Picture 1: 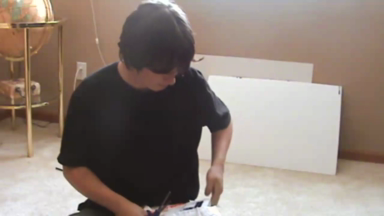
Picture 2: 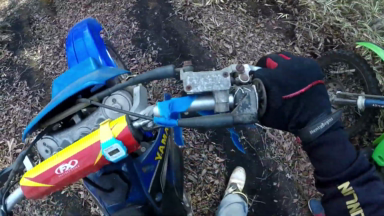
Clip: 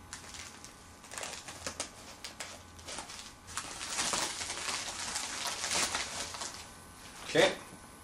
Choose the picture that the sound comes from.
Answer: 1